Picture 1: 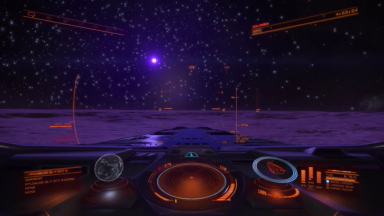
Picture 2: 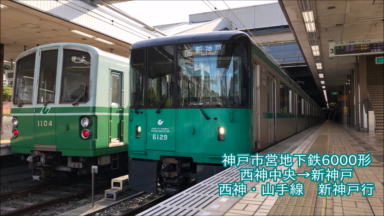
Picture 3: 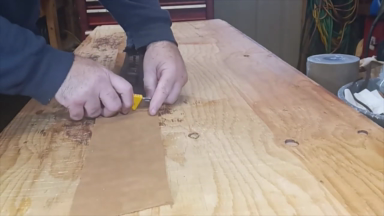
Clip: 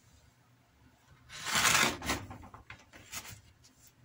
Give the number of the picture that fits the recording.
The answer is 3